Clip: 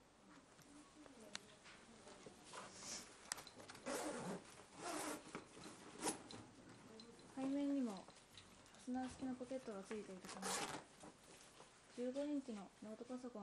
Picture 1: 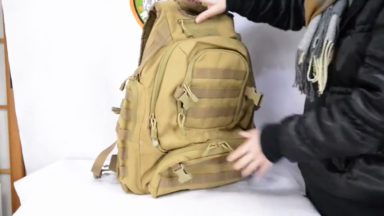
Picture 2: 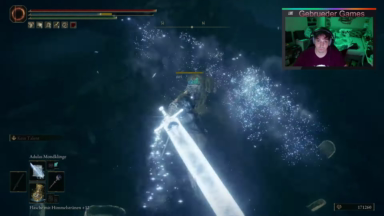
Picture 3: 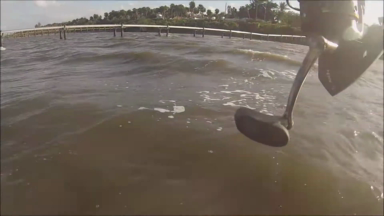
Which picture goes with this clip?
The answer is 1